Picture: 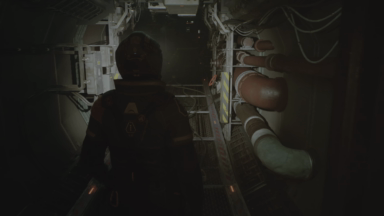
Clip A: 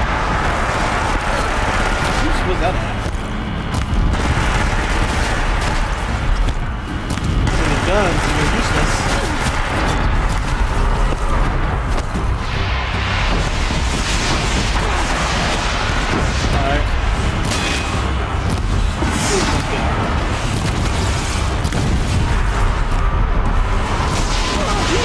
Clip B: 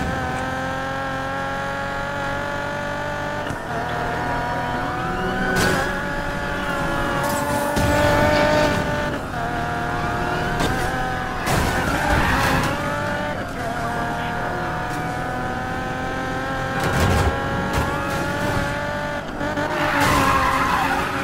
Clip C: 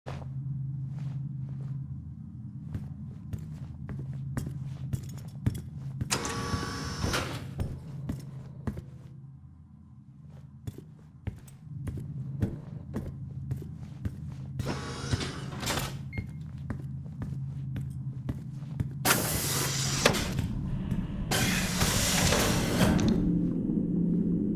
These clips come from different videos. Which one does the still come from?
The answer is C